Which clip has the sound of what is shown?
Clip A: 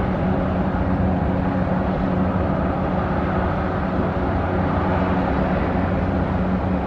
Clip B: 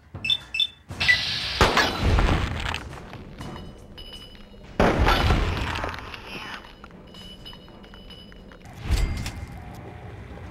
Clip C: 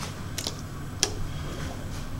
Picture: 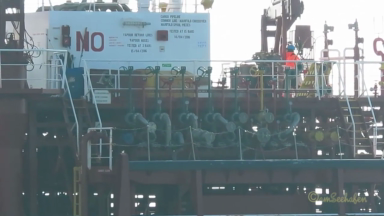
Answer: A